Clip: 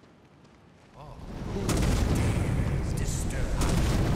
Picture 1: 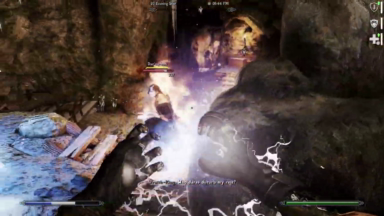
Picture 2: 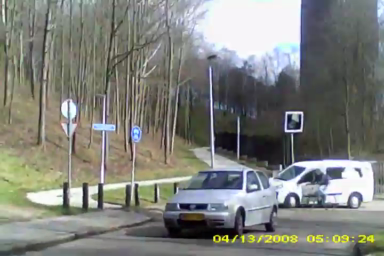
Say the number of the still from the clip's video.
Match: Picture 1